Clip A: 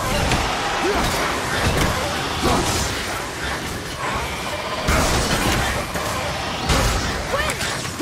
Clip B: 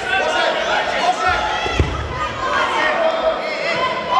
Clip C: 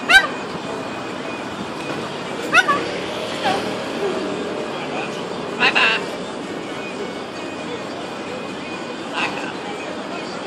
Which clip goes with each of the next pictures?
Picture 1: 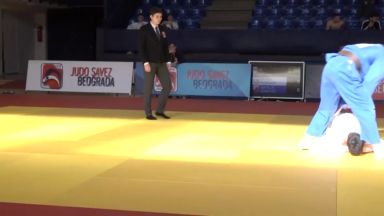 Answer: B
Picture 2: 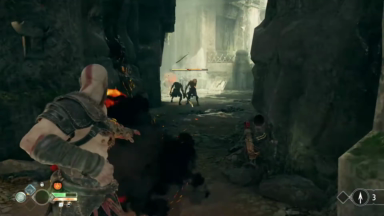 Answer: A